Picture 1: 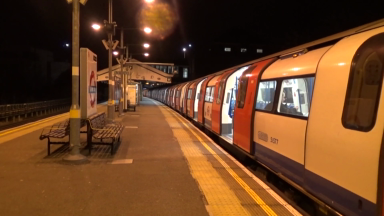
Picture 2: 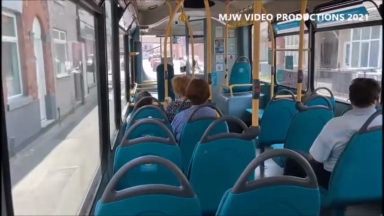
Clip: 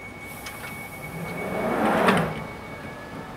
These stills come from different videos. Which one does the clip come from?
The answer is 1